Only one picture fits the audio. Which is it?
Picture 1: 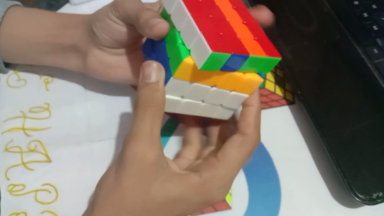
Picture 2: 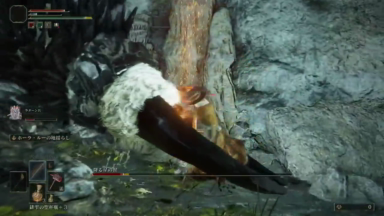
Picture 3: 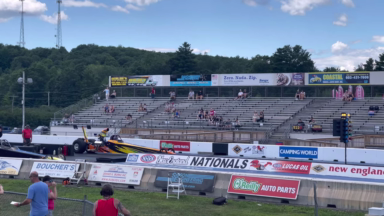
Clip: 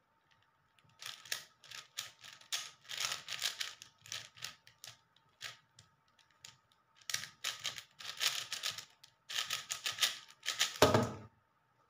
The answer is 1